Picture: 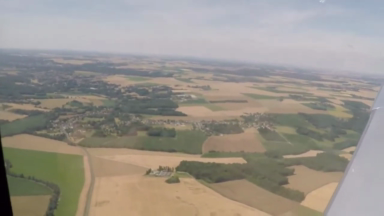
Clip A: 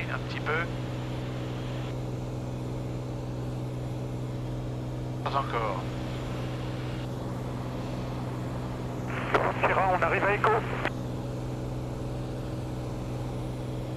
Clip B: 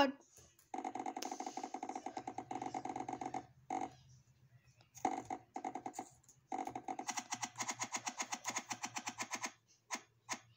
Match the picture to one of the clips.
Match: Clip A